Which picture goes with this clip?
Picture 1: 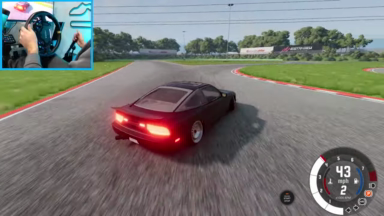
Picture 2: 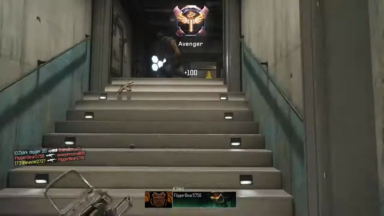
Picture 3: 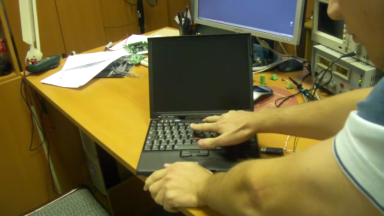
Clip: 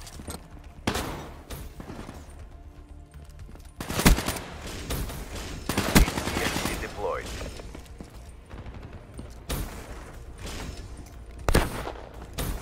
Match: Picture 2